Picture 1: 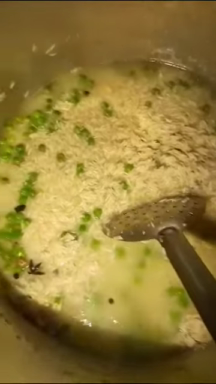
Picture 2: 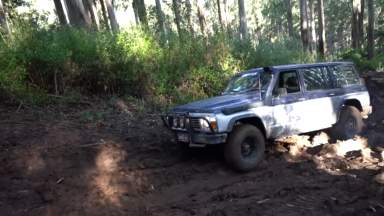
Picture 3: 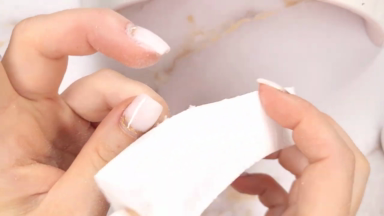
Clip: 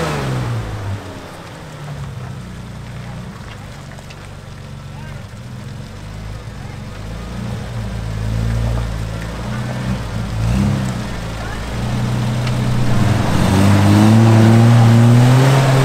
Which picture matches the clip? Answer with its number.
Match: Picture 2